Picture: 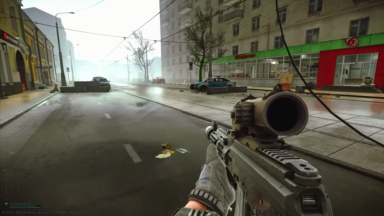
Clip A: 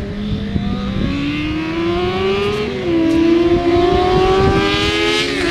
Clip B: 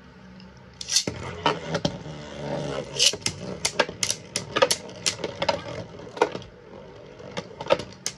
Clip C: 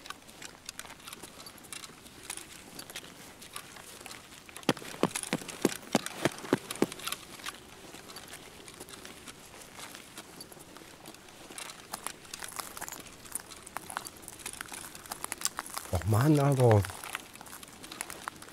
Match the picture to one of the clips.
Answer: C